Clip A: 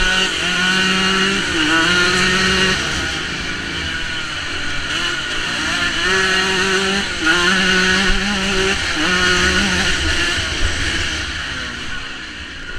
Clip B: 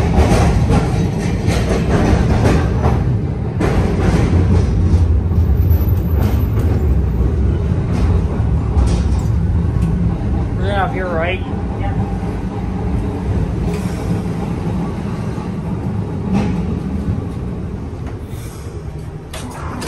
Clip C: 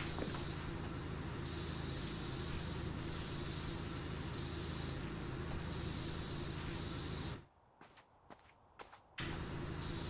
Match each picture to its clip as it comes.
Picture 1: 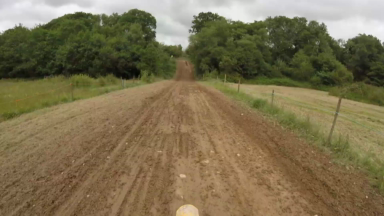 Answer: A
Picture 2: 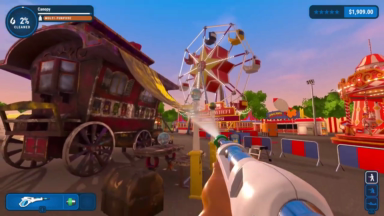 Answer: C